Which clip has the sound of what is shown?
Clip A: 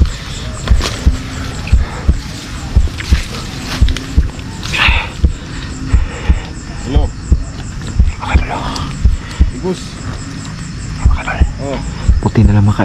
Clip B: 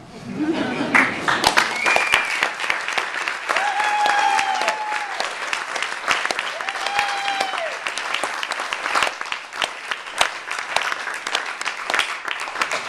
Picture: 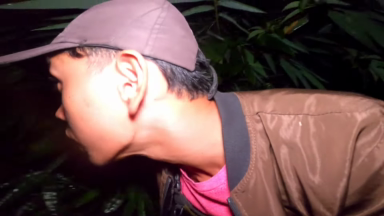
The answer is A